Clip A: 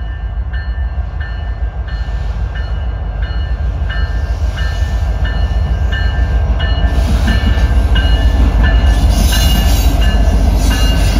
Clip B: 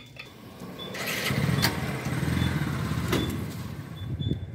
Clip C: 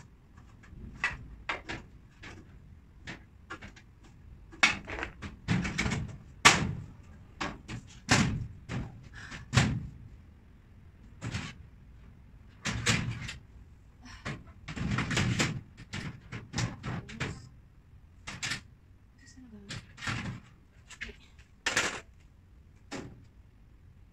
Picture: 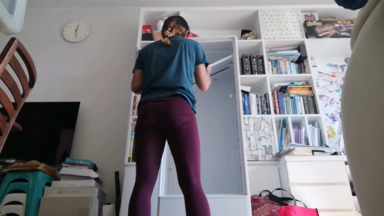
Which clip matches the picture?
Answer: C